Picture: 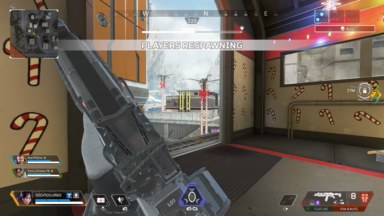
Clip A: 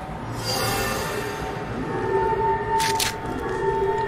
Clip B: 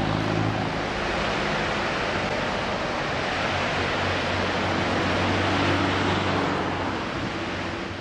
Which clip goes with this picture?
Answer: A